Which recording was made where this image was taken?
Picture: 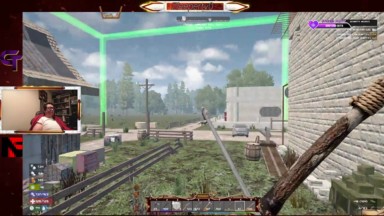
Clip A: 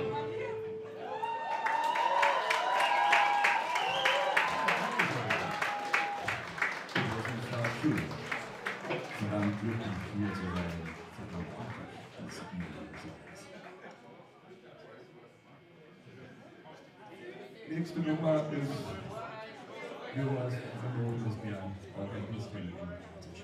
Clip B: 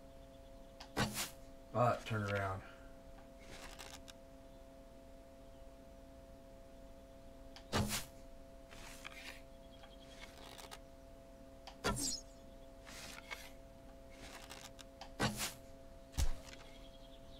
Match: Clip B